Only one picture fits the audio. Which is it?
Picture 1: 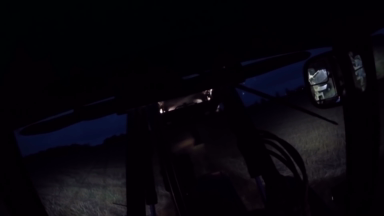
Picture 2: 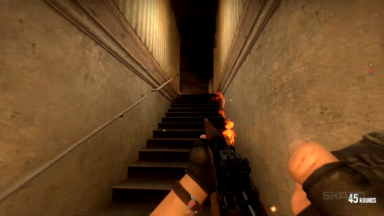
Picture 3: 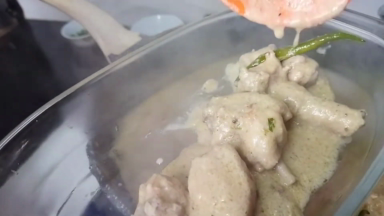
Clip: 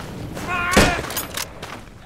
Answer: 2